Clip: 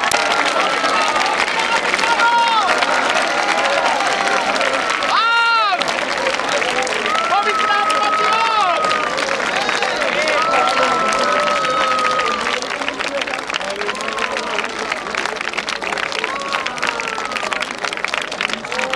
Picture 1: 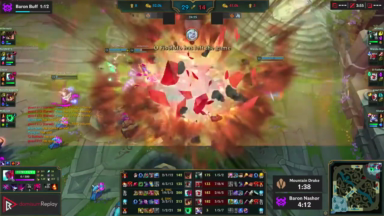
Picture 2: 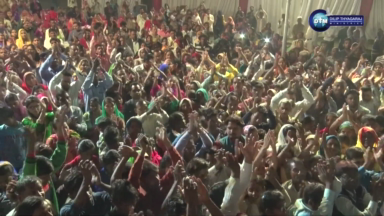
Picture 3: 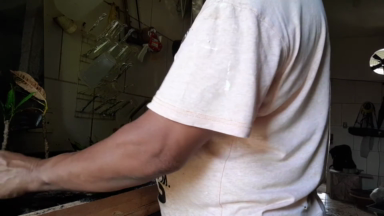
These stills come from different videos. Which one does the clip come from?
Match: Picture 2